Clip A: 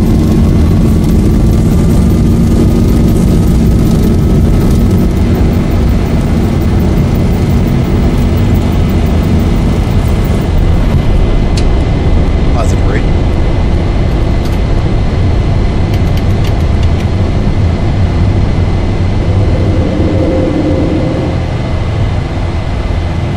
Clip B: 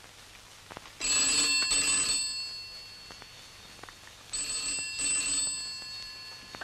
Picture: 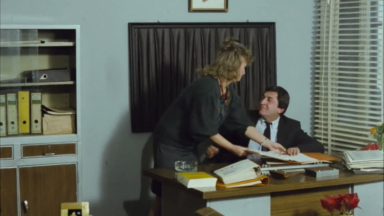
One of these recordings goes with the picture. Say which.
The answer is B